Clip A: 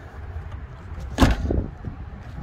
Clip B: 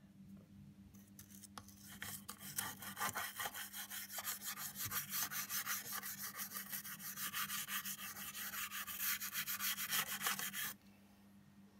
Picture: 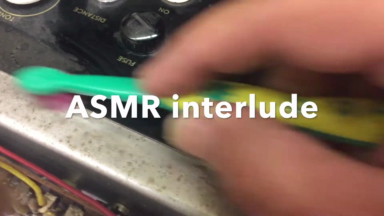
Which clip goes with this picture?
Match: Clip B